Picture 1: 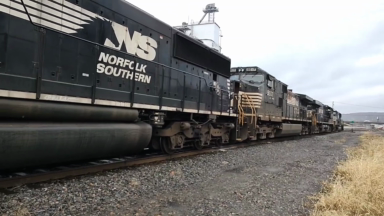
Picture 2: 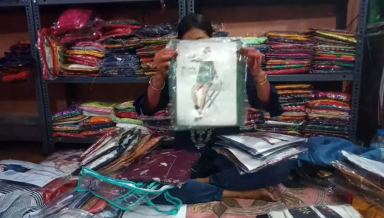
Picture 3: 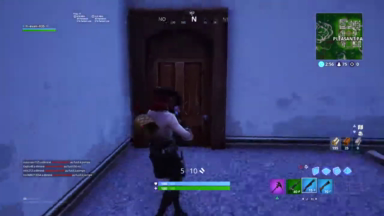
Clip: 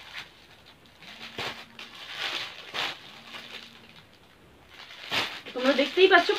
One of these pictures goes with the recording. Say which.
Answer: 2